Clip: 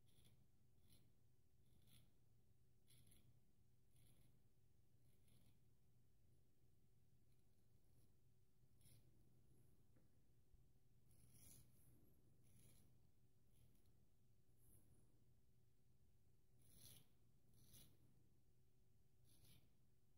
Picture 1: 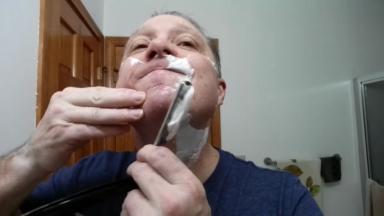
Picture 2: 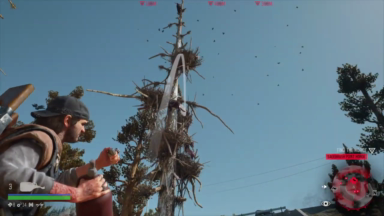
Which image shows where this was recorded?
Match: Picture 1